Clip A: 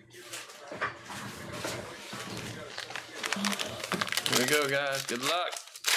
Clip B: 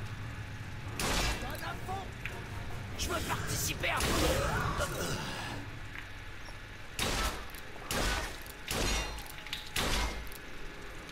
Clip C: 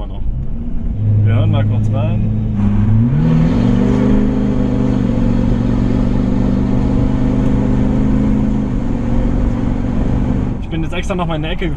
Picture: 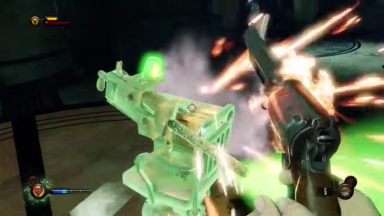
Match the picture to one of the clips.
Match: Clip B